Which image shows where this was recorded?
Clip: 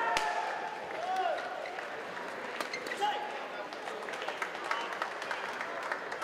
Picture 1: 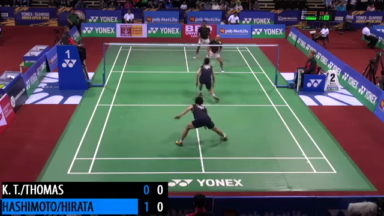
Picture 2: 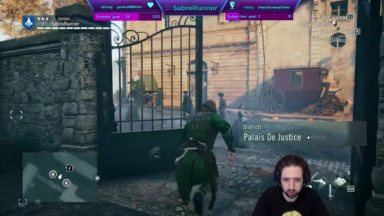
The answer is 1